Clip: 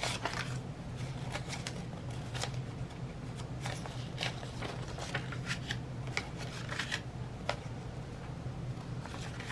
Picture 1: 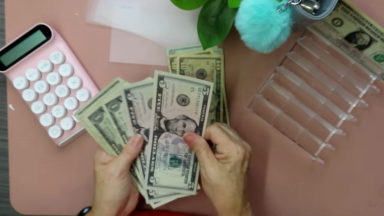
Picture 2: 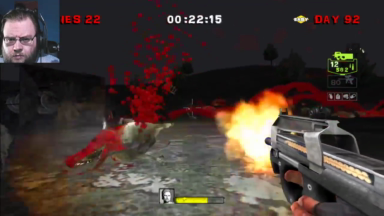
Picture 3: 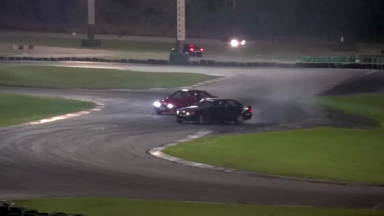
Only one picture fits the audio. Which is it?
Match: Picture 1